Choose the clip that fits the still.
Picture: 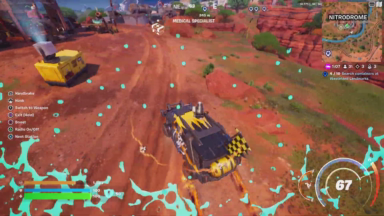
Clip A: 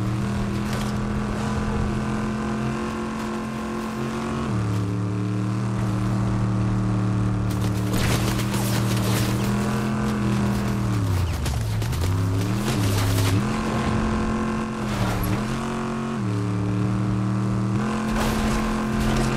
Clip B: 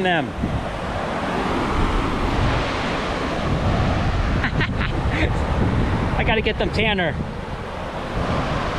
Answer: A